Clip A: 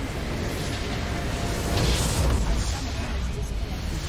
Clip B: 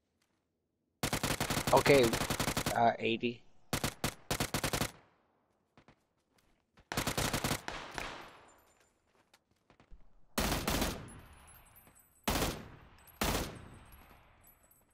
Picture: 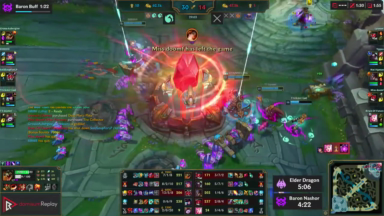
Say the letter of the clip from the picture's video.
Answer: A